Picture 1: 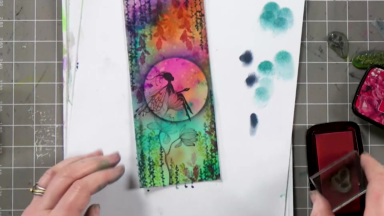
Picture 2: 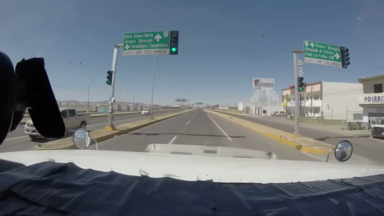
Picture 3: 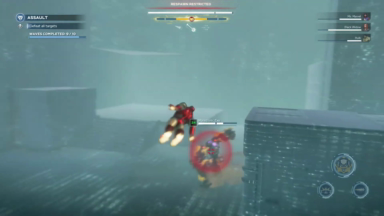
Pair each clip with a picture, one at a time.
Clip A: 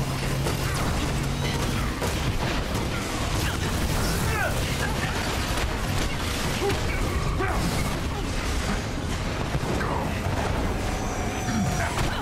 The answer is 3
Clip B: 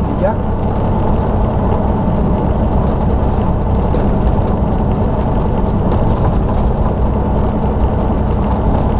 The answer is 2